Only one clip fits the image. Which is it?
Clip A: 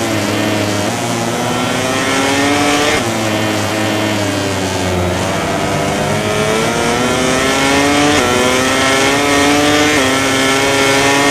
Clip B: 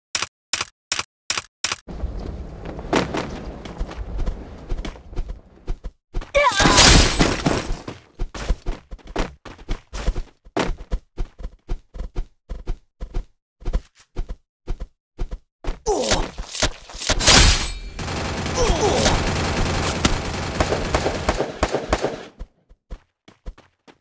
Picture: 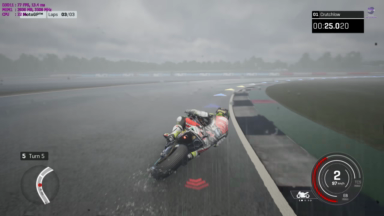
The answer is A